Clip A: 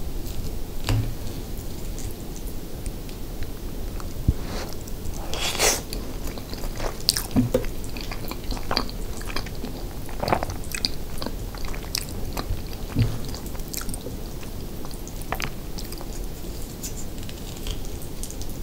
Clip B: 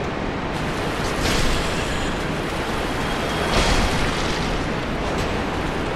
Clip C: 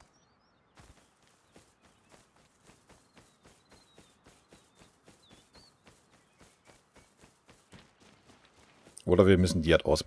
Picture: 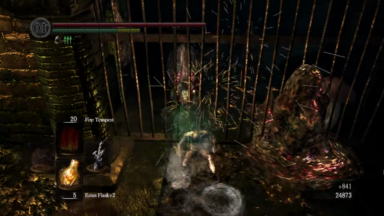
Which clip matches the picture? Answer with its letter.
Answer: B